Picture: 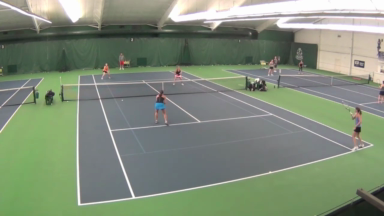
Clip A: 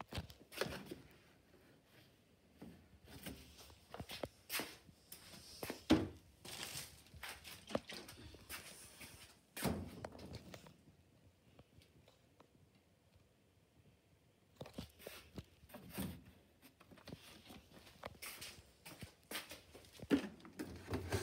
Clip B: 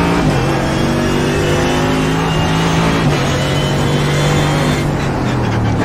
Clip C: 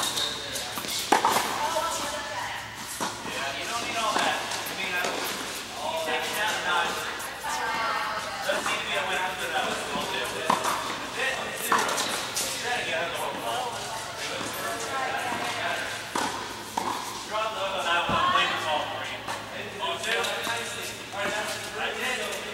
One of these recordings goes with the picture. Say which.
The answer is C